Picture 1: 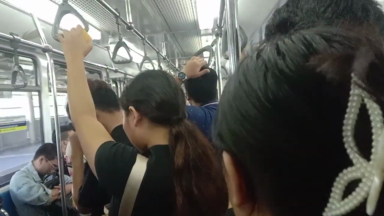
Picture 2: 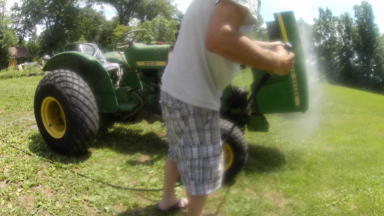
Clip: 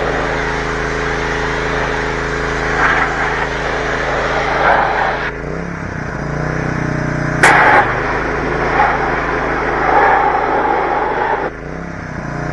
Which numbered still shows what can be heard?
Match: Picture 2